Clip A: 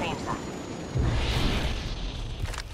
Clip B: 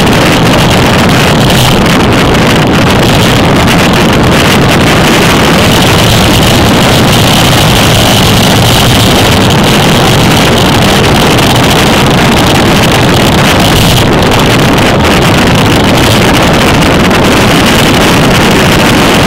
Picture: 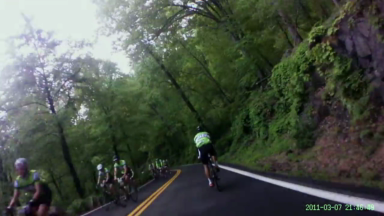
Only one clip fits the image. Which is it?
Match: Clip B